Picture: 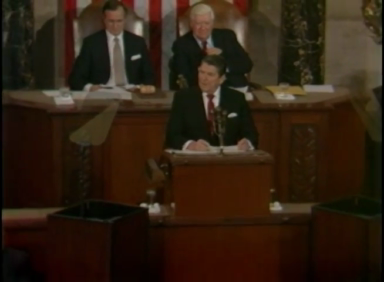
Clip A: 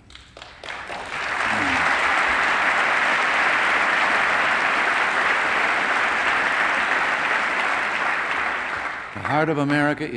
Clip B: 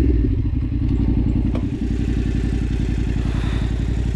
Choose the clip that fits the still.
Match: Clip A